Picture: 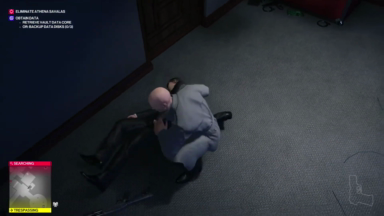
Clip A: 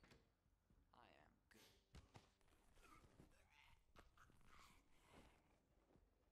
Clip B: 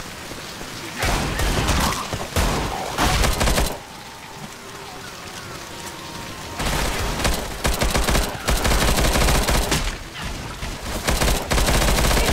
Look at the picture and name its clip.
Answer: A